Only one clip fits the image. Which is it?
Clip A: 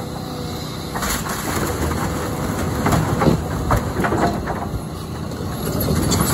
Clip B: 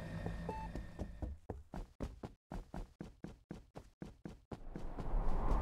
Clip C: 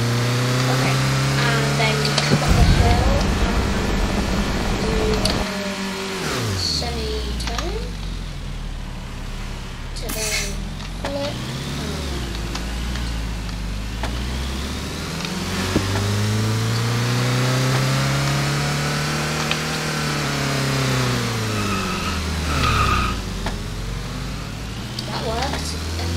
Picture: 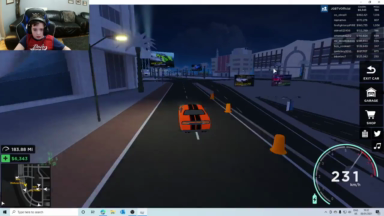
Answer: C